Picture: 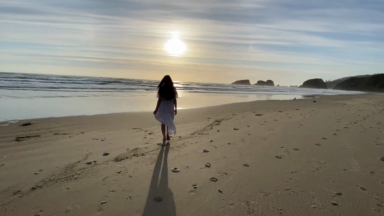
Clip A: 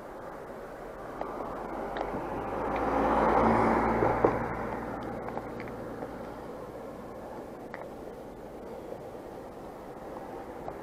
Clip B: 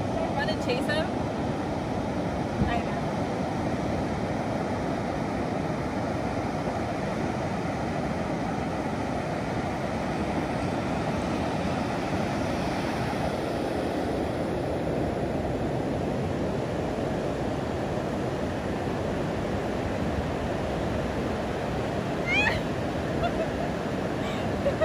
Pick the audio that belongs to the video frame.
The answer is B